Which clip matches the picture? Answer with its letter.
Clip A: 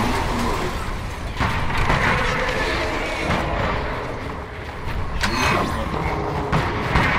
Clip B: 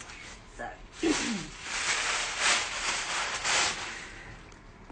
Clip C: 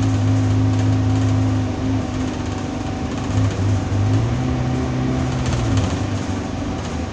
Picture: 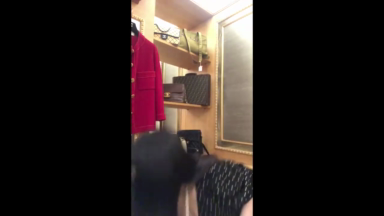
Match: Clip B